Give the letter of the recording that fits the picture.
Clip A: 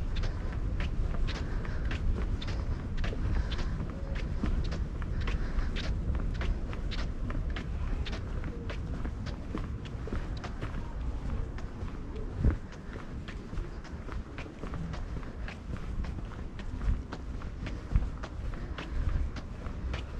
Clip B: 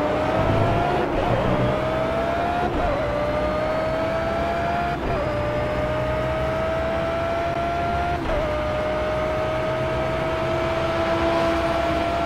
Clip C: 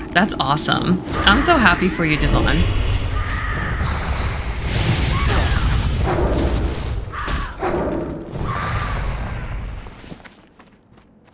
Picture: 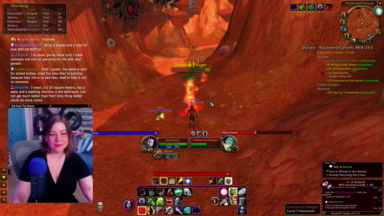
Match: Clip C